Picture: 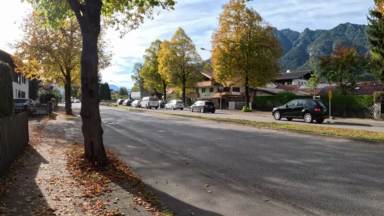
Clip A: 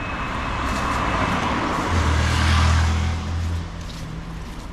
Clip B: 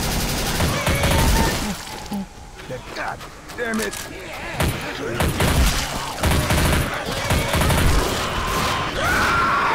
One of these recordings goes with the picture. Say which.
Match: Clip A